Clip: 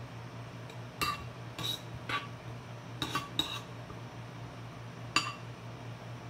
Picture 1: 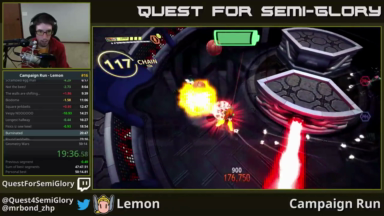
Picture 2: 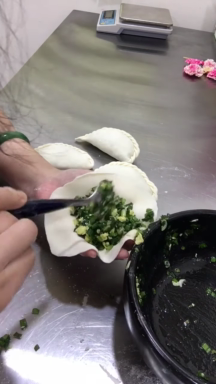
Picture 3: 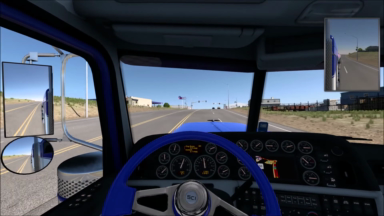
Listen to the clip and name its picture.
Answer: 2